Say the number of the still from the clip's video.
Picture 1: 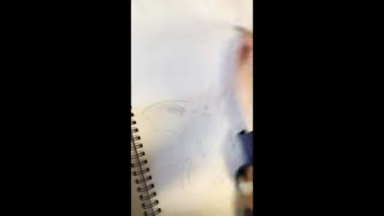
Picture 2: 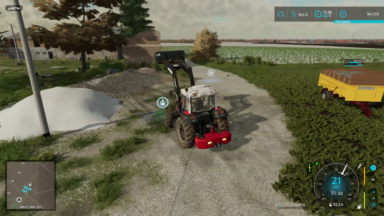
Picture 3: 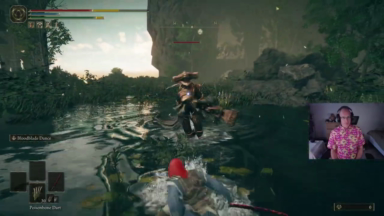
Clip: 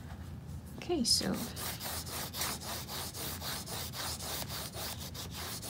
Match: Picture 1